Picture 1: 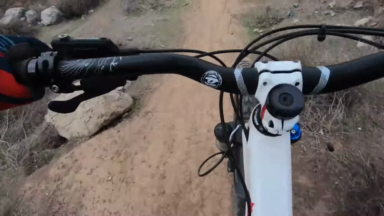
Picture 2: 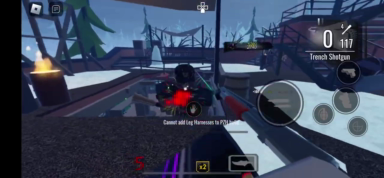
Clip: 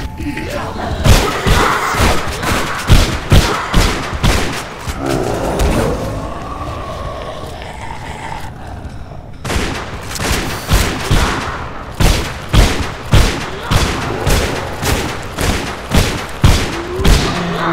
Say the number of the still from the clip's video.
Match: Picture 2